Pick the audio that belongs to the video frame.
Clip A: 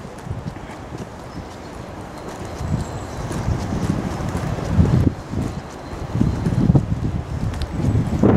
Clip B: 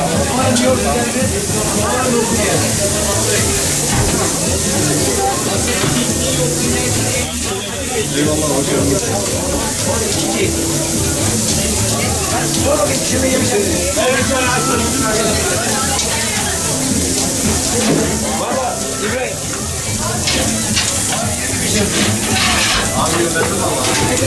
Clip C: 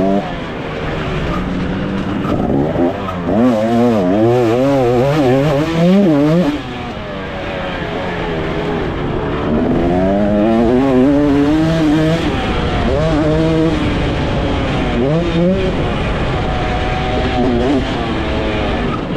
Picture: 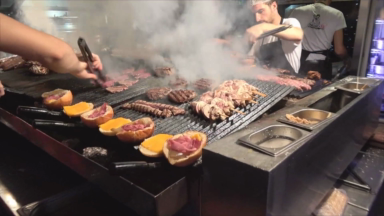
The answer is B